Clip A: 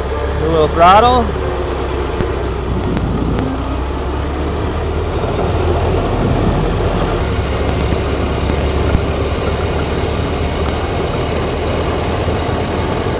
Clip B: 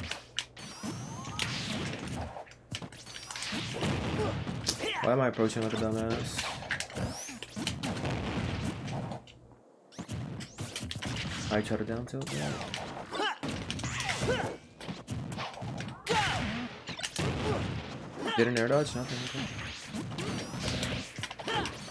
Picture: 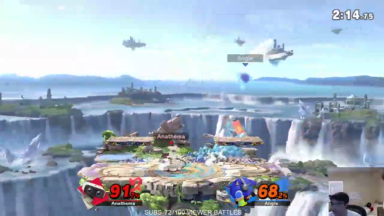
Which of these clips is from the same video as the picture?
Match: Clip B